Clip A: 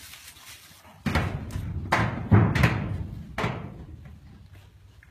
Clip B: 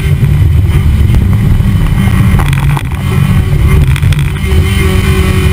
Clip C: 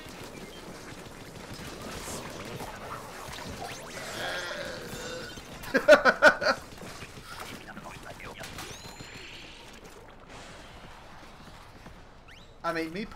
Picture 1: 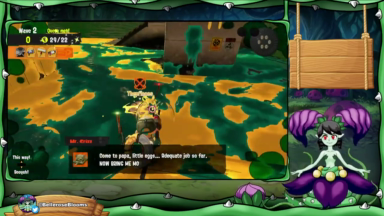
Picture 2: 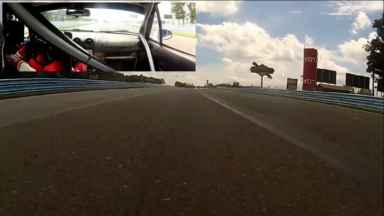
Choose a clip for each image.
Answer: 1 C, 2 B